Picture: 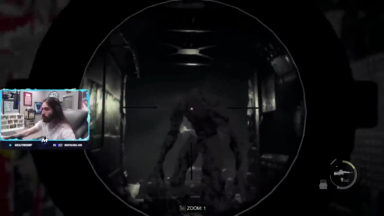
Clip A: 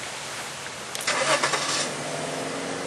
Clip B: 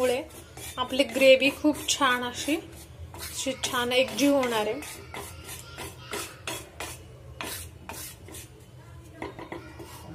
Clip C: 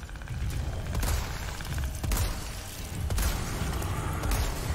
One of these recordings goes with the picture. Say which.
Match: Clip C